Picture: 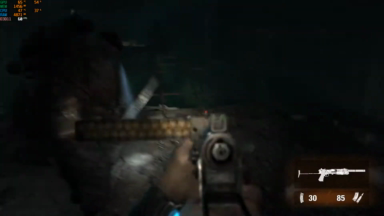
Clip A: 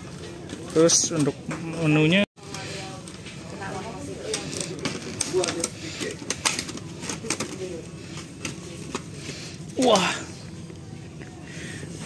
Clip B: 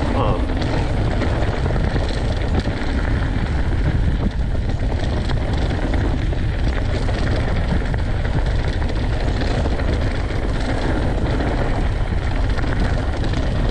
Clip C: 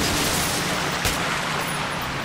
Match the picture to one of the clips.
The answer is C